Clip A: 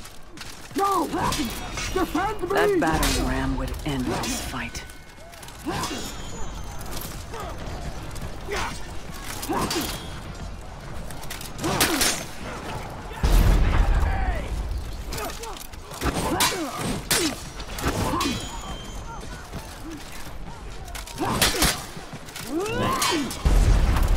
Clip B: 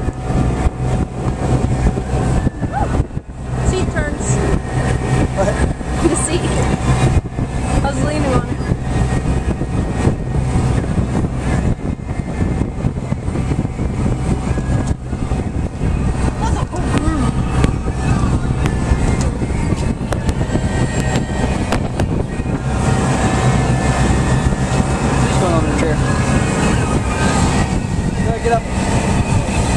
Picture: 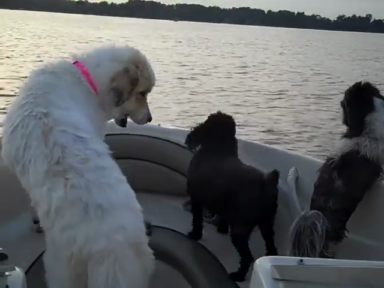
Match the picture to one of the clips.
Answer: B